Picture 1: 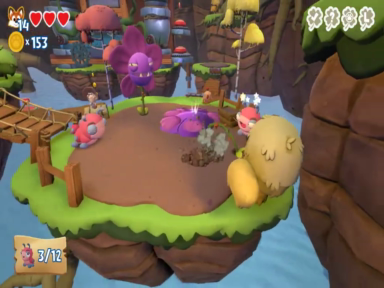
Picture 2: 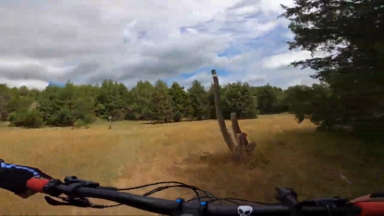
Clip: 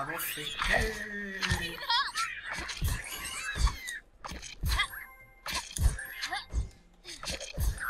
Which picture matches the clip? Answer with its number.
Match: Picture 1